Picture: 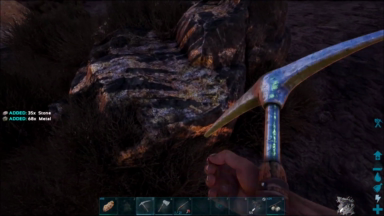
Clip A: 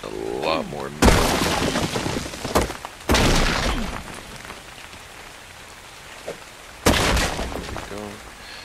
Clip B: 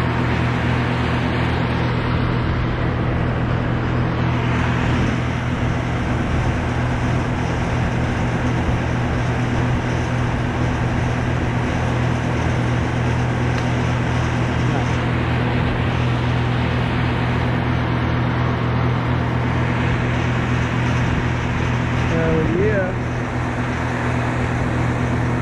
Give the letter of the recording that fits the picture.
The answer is A